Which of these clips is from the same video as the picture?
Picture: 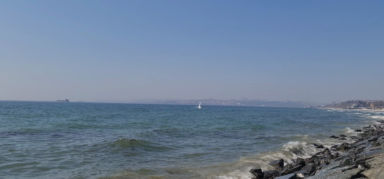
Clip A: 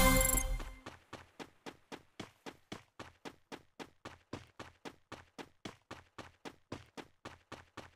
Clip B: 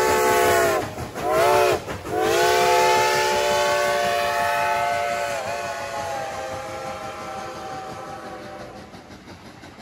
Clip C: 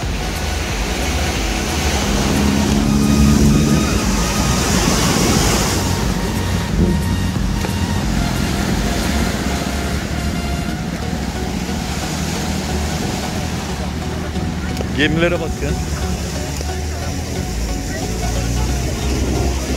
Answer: C